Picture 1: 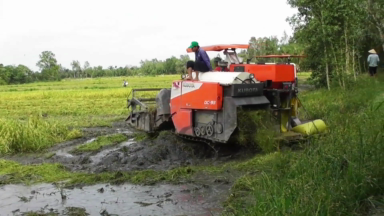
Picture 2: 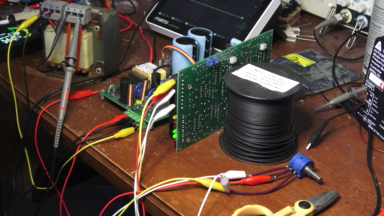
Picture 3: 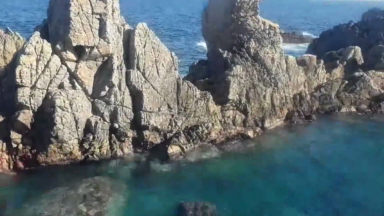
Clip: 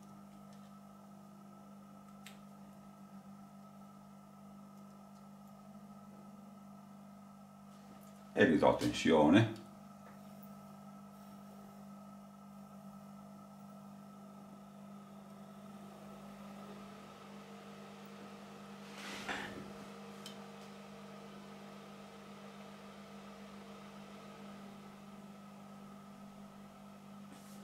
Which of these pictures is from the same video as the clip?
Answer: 2